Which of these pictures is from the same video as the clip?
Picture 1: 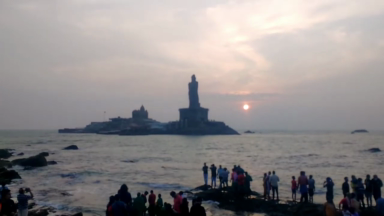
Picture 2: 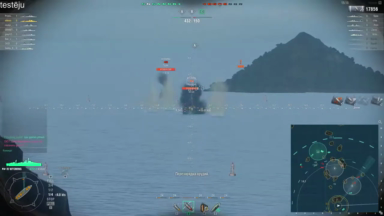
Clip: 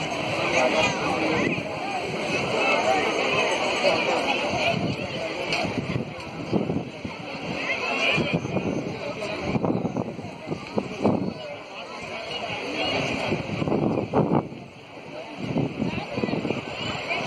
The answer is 1